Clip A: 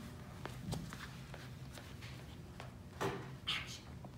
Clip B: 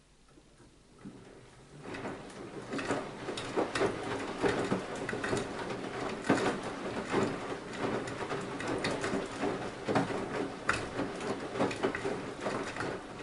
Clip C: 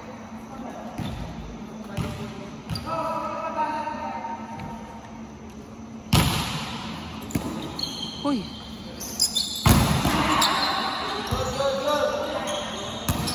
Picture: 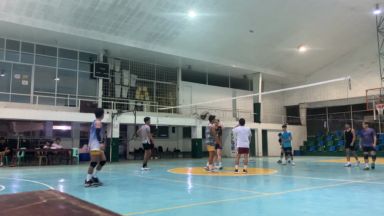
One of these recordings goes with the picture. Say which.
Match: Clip C